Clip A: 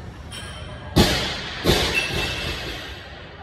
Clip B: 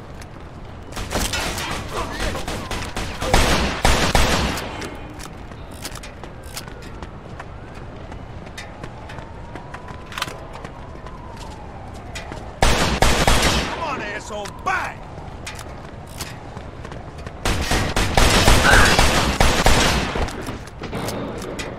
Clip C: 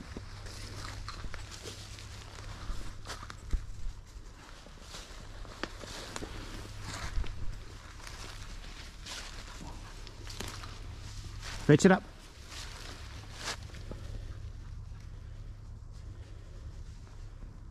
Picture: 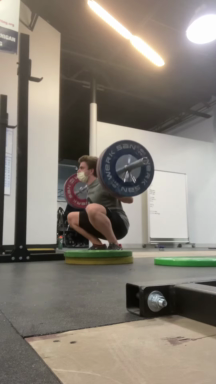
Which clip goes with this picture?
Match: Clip A